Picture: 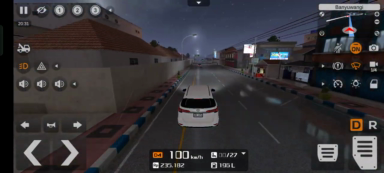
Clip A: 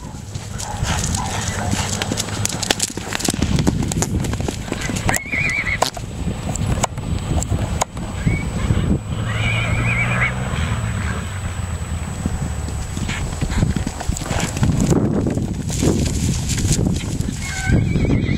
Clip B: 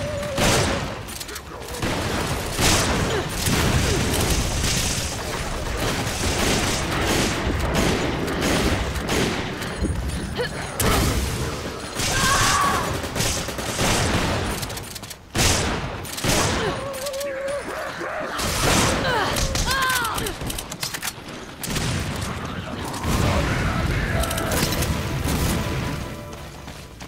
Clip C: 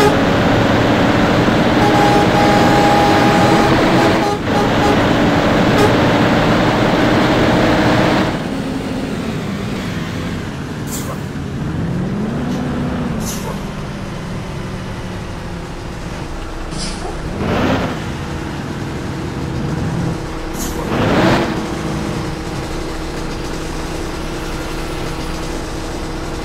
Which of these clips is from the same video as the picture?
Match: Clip C